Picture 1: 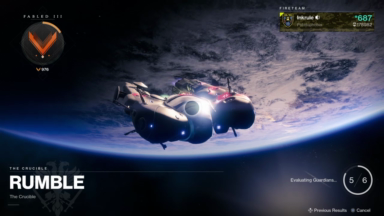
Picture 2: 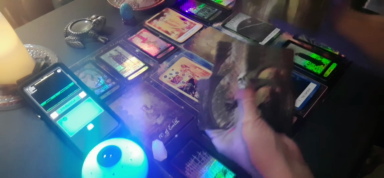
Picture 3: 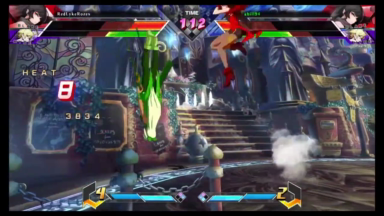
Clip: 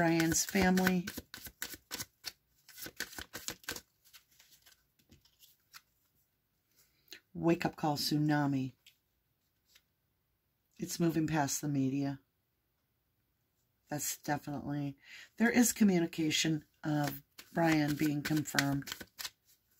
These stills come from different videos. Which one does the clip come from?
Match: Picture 2